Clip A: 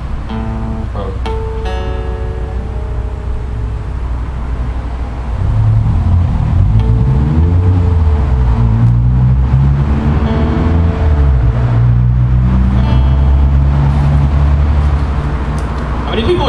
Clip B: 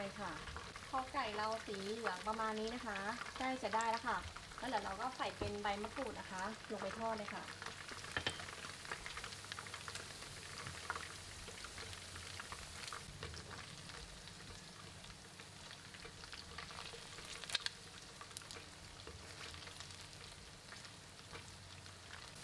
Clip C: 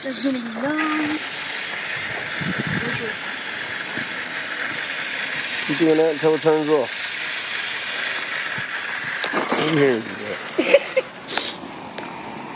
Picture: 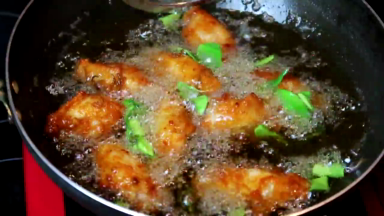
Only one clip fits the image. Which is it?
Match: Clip B